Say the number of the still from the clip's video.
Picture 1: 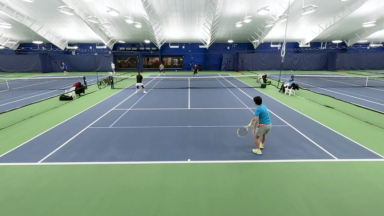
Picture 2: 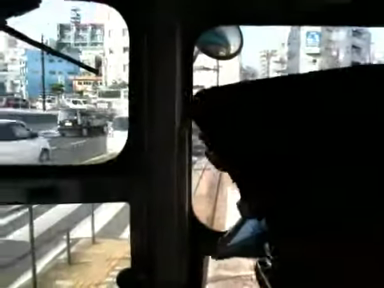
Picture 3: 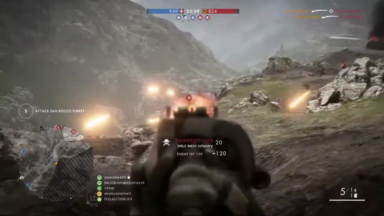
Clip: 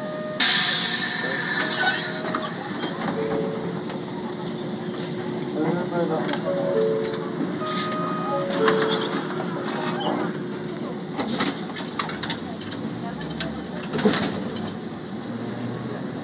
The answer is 2